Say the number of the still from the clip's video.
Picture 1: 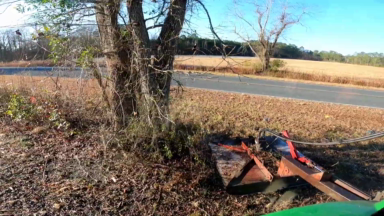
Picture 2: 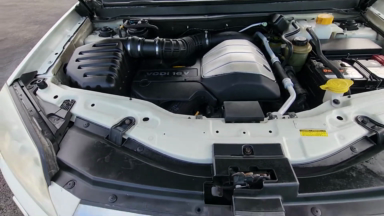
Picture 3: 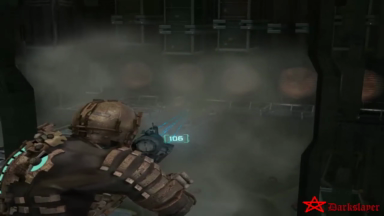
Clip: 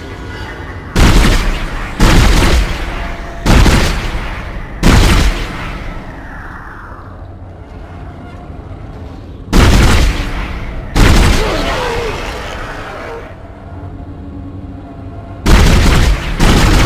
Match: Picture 3